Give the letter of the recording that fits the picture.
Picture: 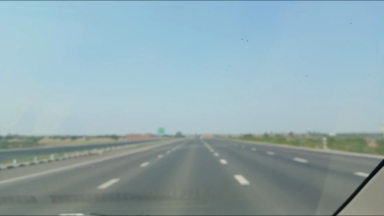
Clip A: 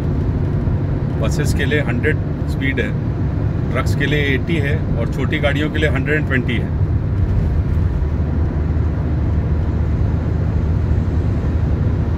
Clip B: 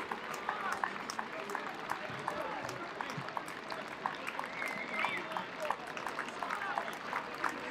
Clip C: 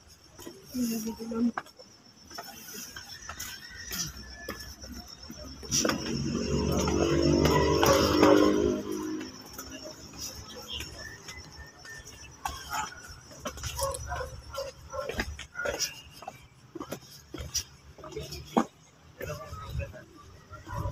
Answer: A